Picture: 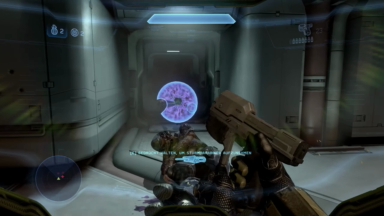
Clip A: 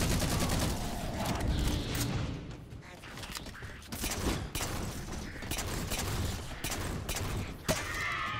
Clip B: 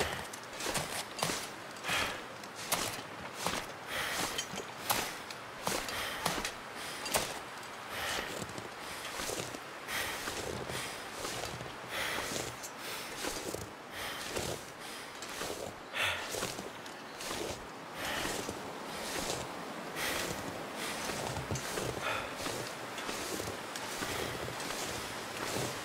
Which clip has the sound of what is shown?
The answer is A